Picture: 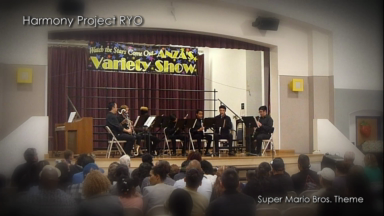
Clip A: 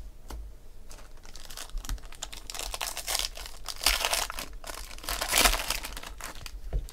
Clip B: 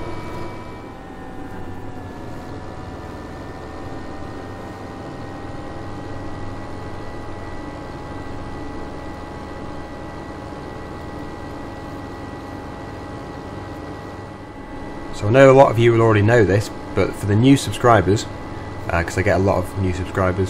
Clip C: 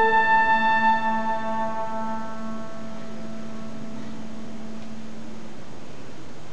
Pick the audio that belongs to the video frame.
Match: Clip C